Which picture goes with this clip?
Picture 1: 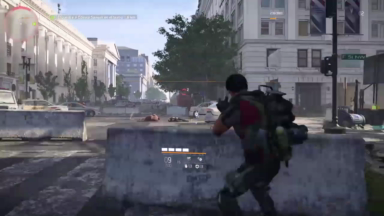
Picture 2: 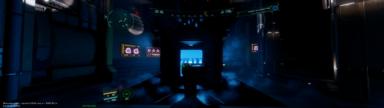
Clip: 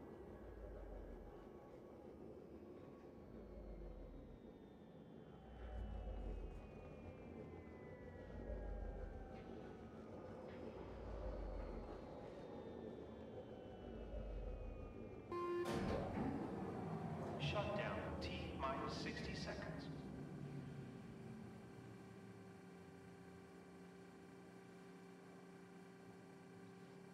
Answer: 2